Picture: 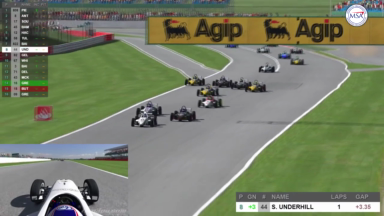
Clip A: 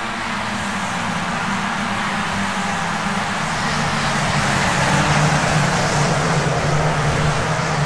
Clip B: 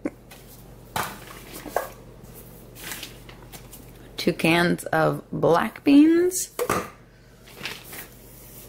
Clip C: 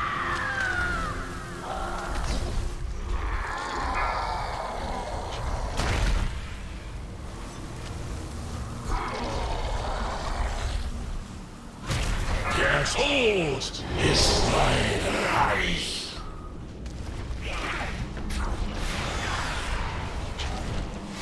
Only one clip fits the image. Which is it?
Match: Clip A